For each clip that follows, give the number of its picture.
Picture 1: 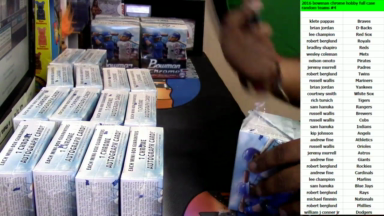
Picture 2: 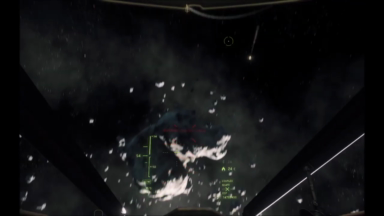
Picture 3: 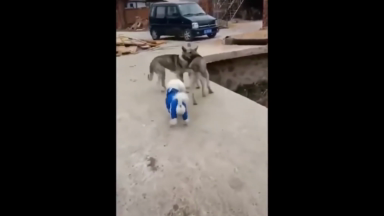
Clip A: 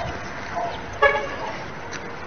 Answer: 3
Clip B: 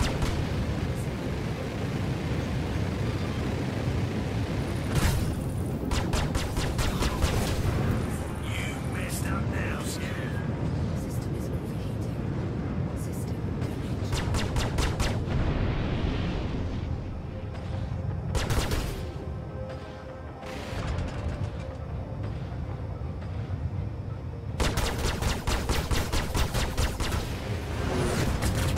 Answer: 2